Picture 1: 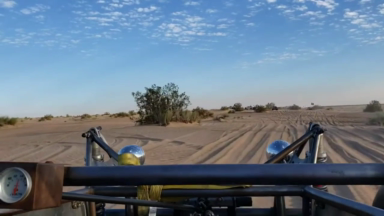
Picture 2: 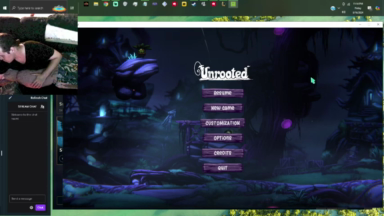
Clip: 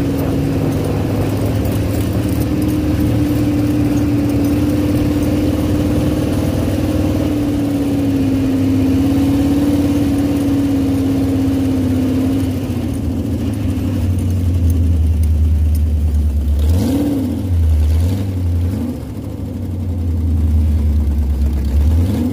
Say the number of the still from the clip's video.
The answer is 1